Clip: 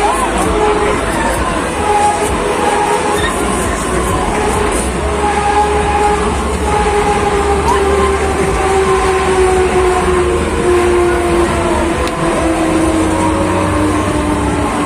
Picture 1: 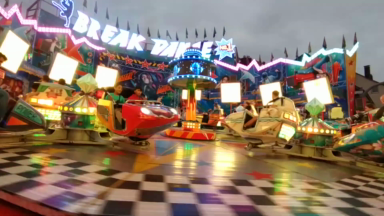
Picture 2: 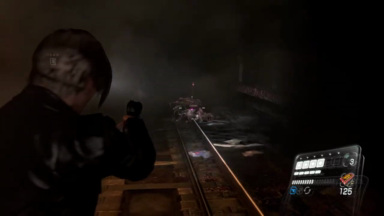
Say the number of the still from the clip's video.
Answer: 1